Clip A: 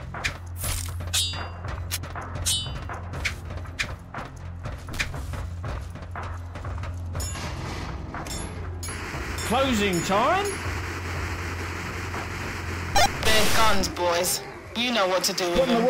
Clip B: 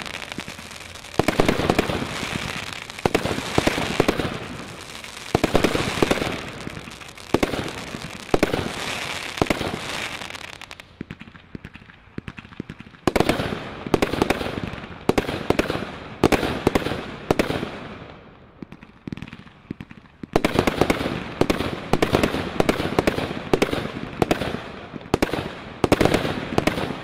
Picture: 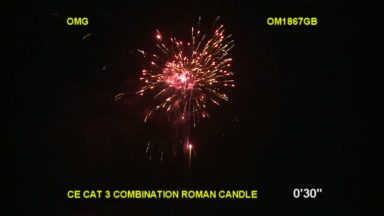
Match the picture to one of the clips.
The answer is B